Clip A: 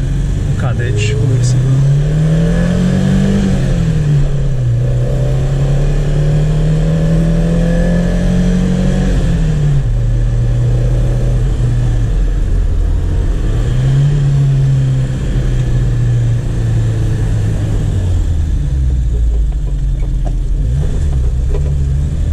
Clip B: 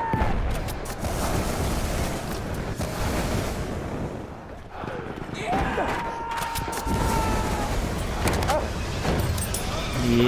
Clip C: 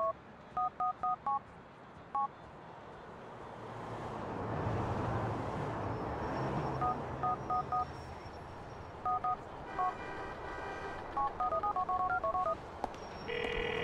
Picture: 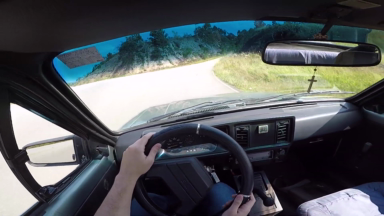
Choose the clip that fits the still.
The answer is A